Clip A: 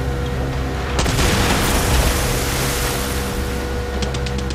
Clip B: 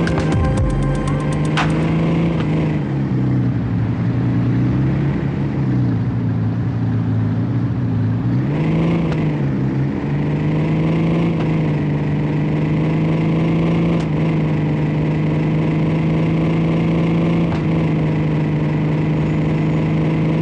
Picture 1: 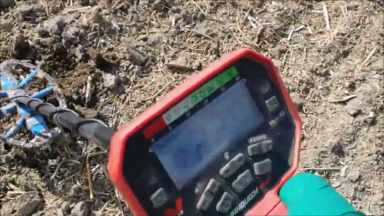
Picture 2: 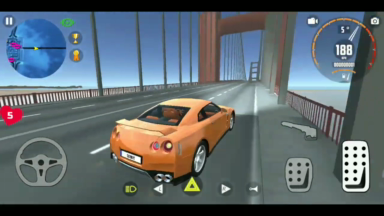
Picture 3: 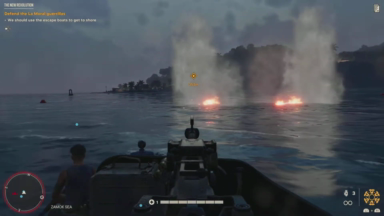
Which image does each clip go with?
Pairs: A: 3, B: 2